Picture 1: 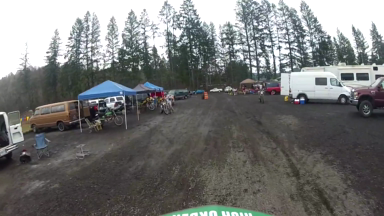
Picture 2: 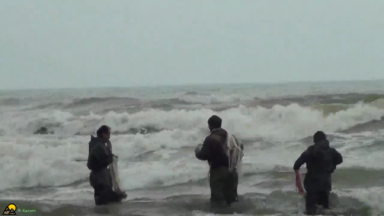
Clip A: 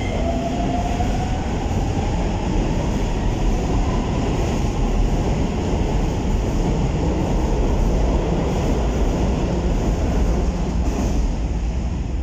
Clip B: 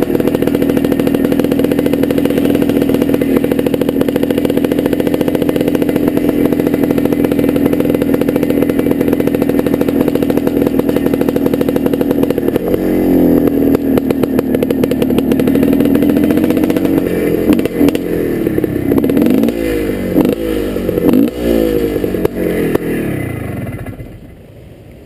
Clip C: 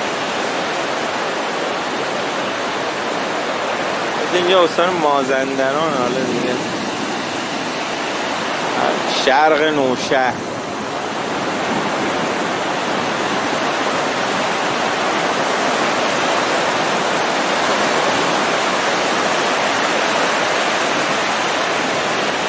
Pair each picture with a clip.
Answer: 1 B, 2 C